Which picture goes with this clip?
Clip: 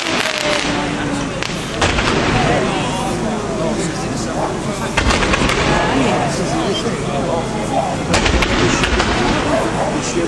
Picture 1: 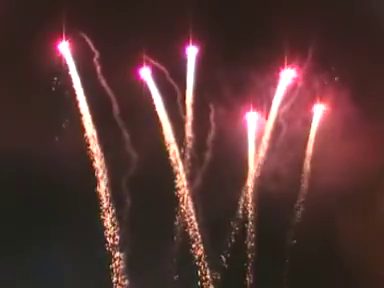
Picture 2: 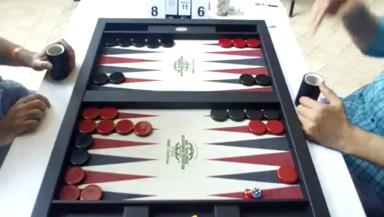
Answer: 1